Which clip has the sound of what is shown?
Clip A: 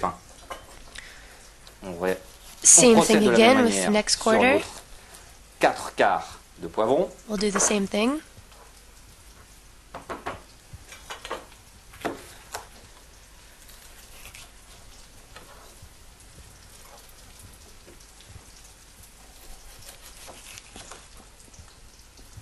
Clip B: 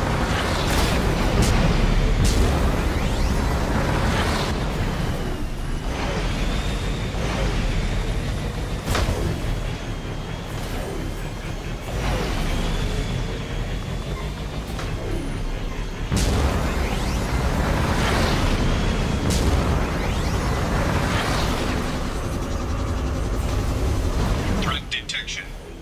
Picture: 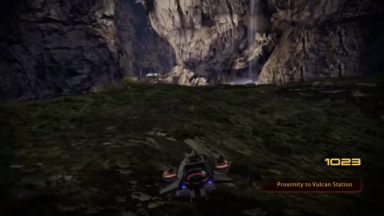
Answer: B